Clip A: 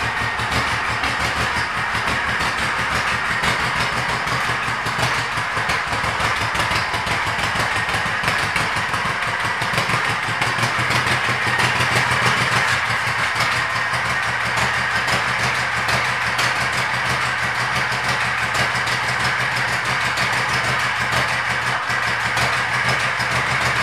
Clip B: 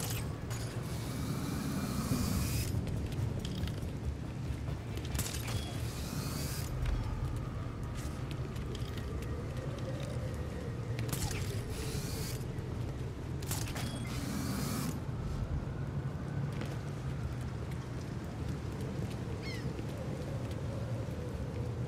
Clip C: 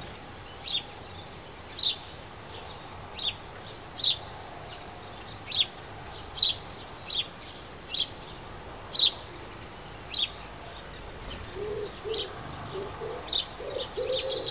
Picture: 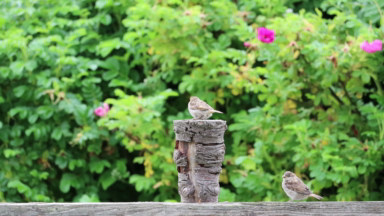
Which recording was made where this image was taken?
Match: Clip C